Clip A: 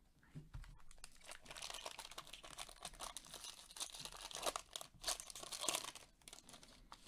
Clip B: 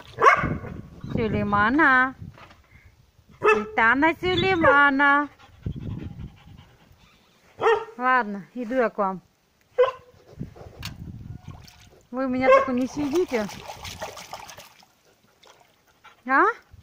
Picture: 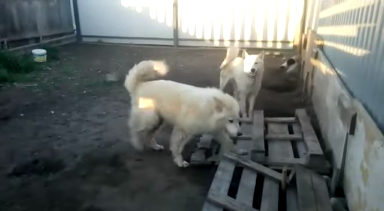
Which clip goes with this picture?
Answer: B